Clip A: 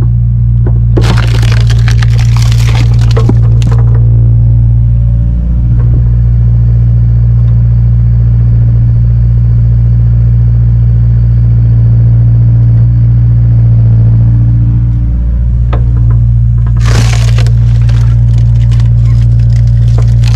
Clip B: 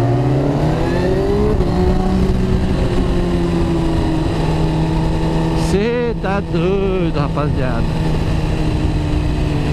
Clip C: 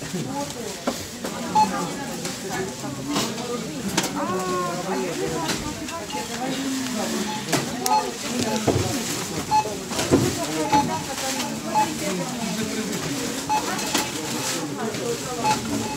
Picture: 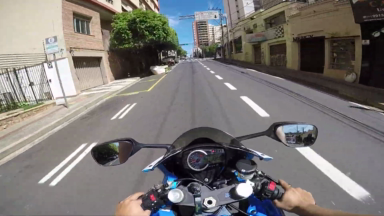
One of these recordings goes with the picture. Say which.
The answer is B